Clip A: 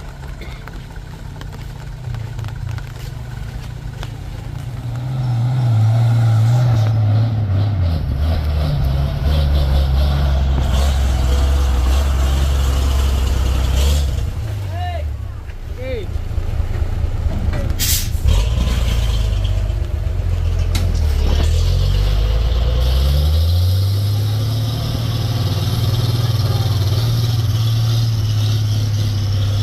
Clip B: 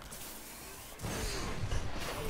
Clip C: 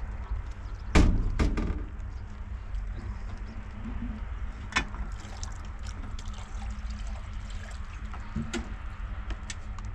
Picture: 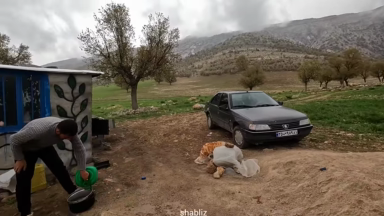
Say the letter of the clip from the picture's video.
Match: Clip C